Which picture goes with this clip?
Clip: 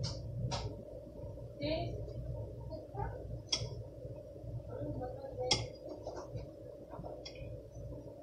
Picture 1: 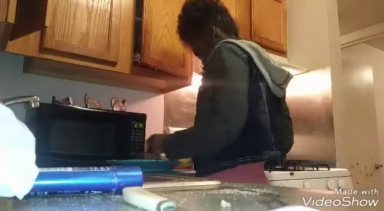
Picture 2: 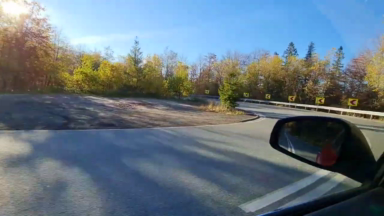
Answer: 1